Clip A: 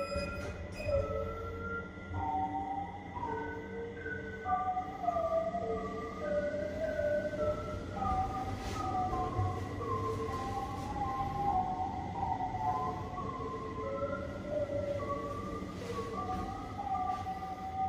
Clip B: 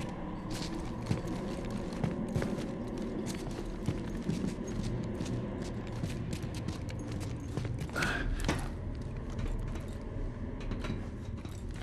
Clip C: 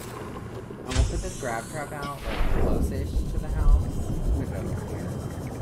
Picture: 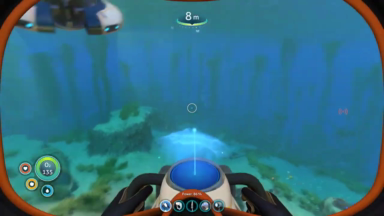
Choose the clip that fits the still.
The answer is C